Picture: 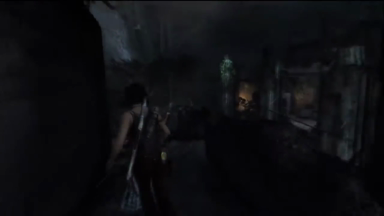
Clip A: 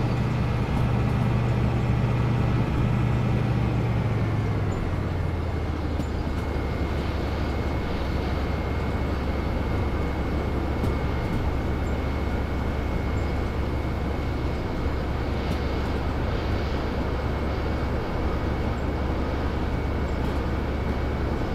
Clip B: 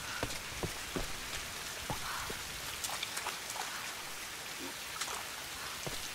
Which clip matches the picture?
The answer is B